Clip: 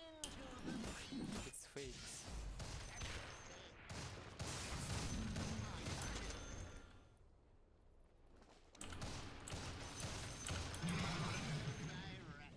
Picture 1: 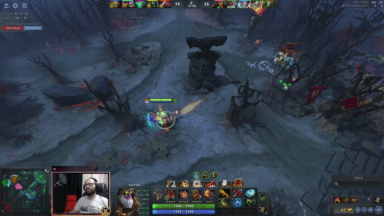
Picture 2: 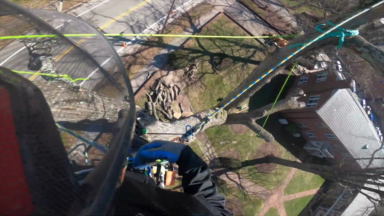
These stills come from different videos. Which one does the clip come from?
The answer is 1